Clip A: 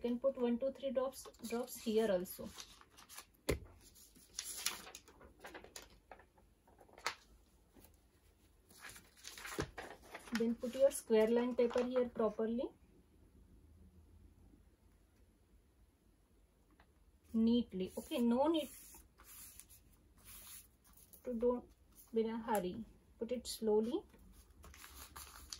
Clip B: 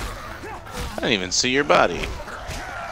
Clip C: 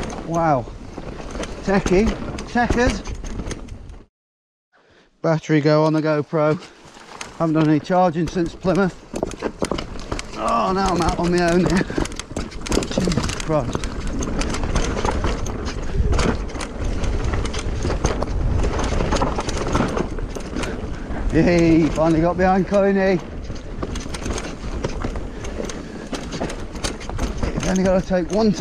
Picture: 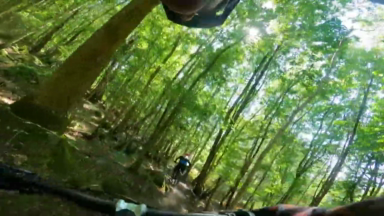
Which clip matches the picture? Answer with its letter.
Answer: C